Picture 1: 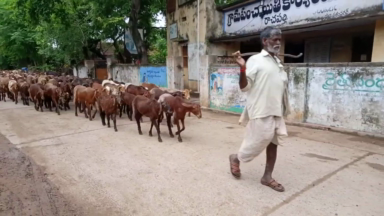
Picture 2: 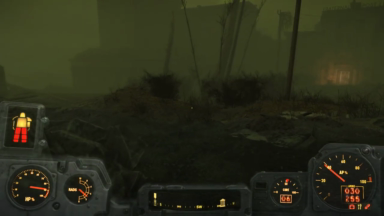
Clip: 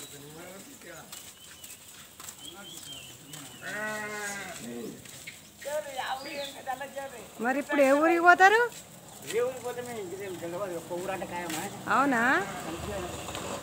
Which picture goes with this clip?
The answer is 1